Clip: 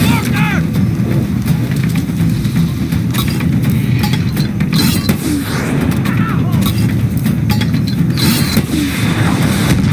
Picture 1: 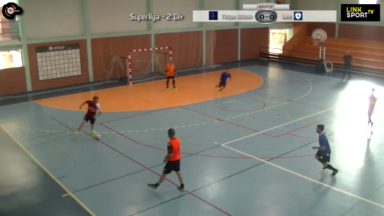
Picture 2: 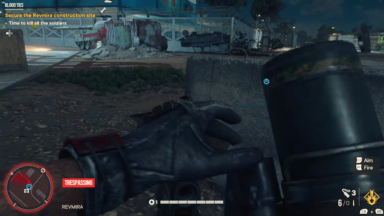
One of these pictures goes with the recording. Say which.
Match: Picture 2